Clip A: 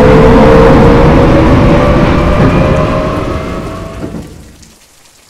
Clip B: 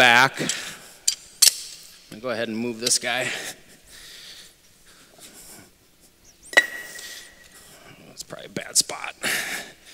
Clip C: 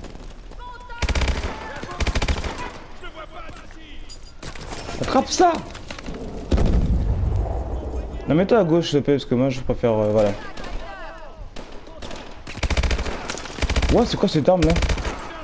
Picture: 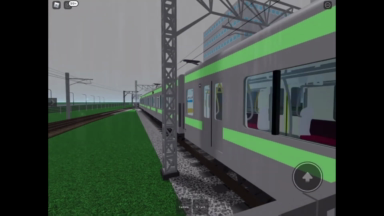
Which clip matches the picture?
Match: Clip A